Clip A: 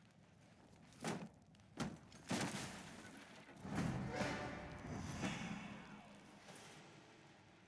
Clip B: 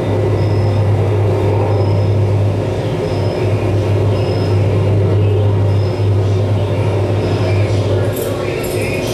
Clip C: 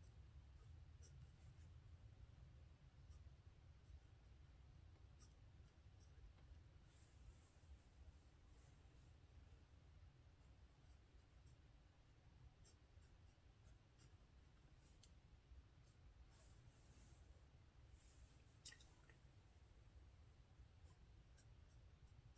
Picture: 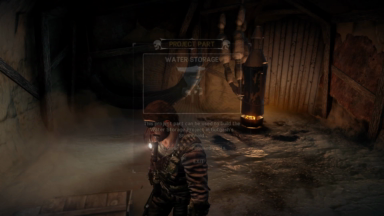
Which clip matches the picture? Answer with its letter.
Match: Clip A